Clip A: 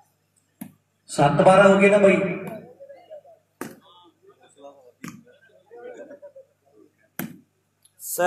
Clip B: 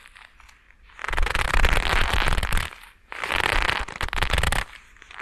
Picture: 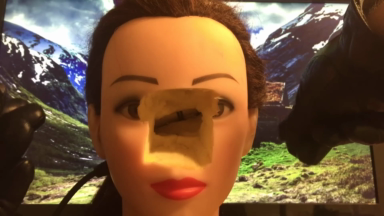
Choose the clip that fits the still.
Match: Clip B